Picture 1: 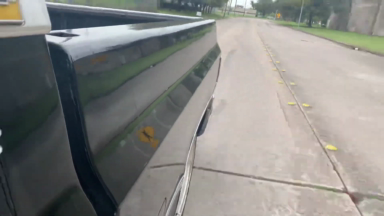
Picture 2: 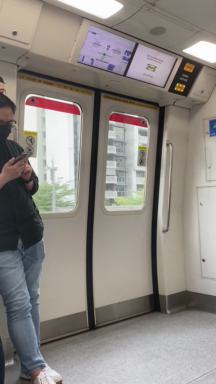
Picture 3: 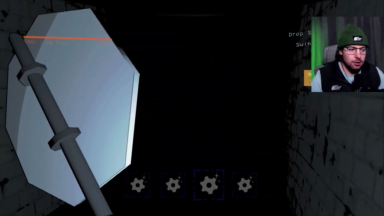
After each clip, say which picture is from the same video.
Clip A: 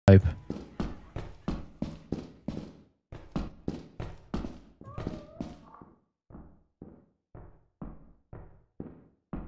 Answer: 3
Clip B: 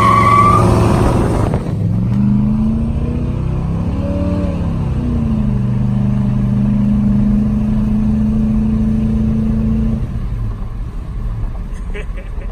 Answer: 1